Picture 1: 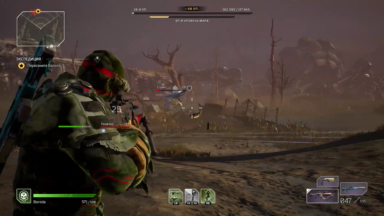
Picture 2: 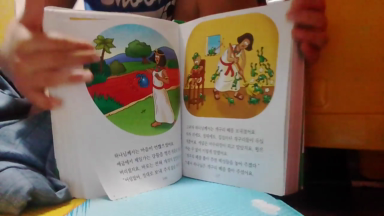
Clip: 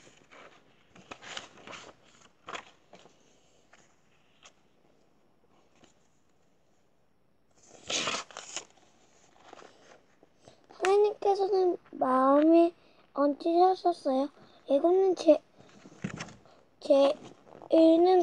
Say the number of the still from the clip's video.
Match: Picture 2